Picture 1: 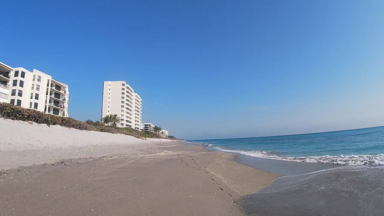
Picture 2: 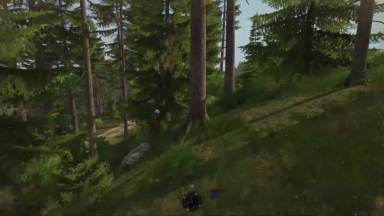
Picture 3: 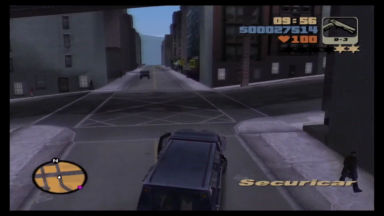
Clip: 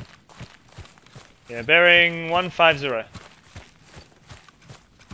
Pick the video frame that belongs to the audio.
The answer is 2